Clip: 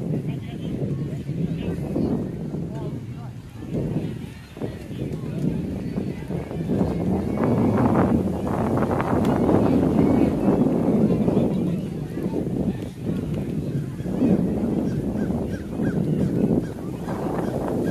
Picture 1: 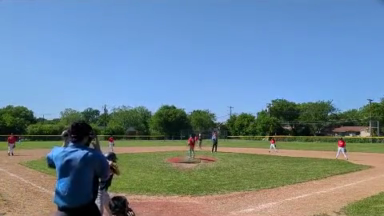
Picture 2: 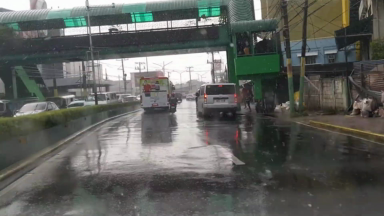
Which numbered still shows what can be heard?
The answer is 1